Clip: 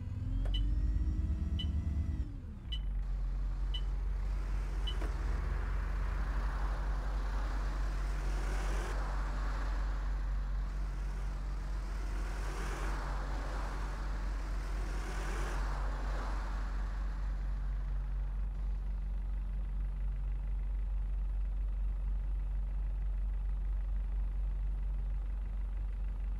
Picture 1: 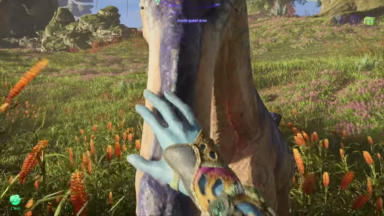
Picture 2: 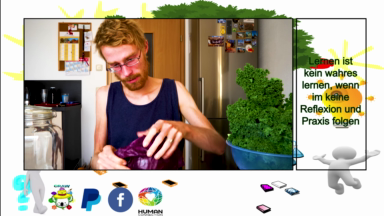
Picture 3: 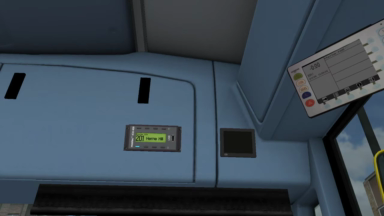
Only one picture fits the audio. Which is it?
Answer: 3